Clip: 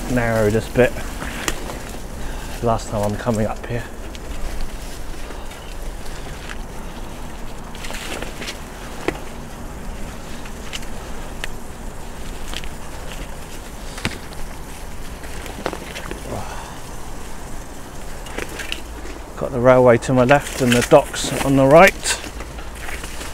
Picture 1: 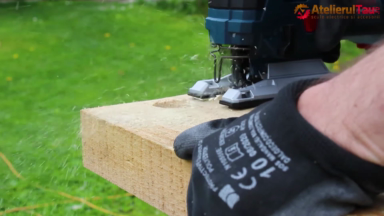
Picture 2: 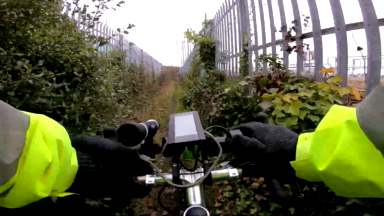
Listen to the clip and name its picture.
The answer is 2